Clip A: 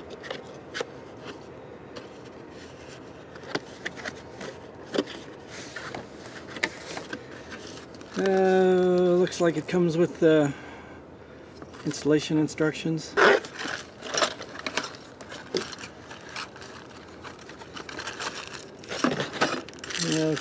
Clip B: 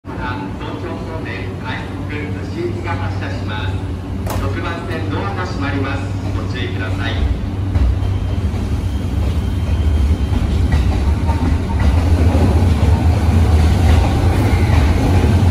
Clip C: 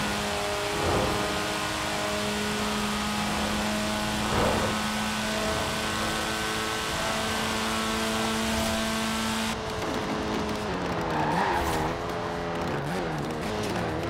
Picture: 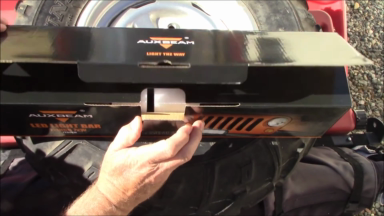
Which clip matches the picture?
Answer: A